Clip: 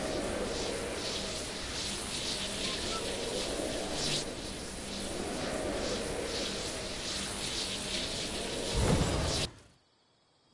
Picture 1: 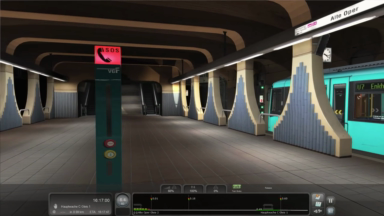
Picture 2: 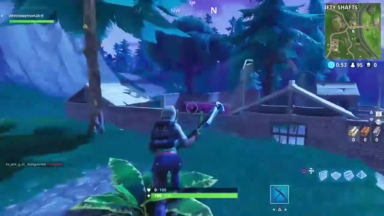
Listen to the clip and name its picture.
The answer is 2